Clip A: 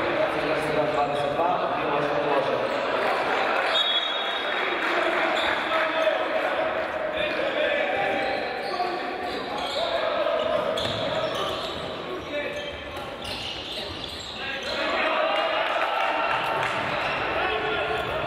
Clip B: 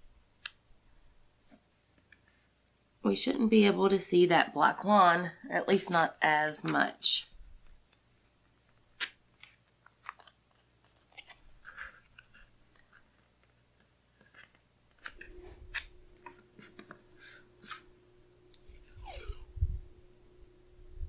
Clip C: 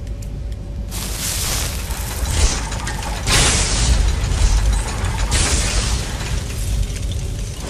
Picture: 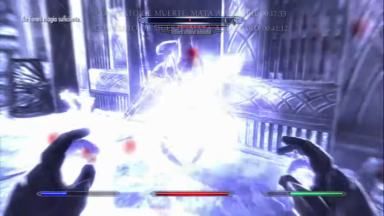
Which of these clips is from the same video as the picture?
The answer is C